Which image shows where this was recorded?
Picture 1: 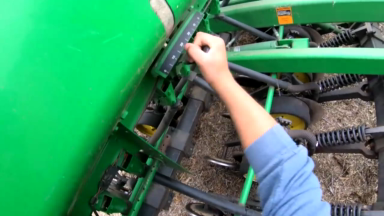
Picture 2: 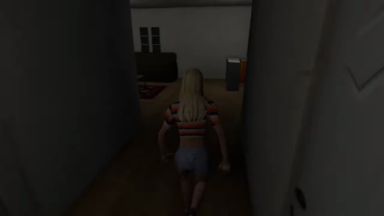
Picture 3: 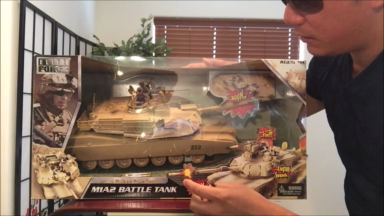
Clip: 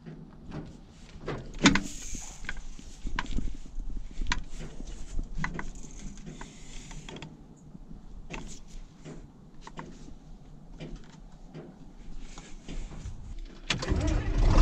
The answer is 1